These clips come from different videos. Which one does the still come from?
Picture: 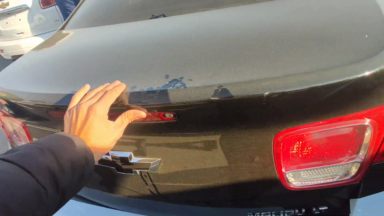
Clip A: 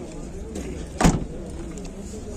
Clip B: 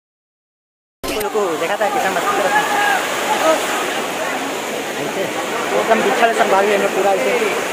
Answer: A